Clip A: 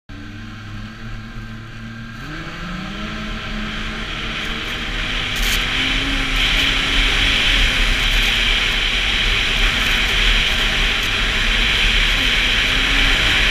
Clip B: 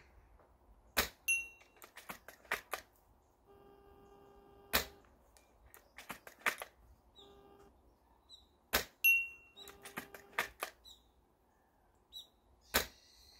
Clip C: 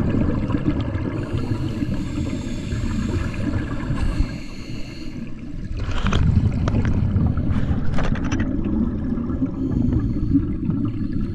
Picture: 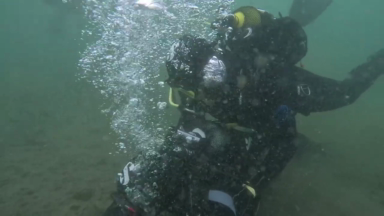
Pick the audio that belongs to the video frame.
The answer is C